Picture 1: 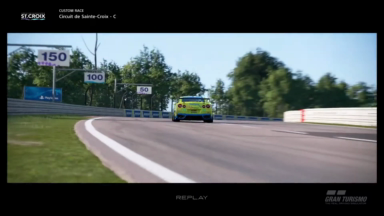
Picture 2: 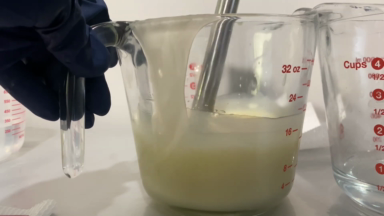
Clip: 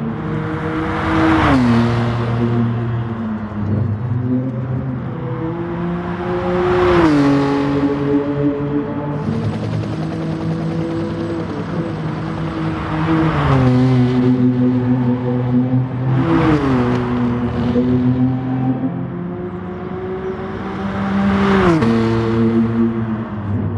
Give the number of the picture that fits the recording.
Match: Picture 1